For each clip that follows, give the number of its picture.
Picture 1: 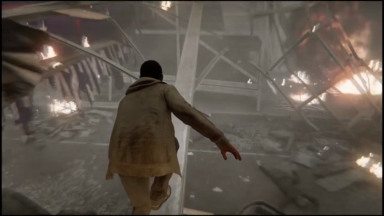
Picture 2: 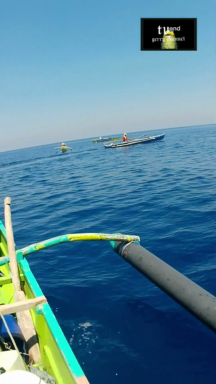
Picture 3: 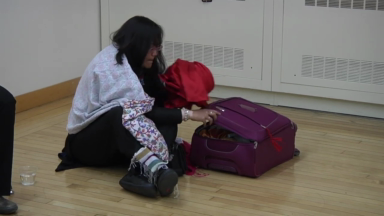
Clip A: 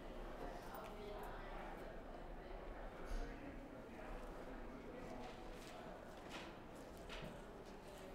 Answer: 3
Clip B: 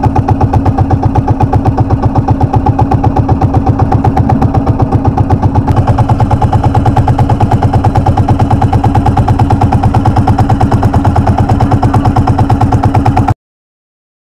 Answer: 2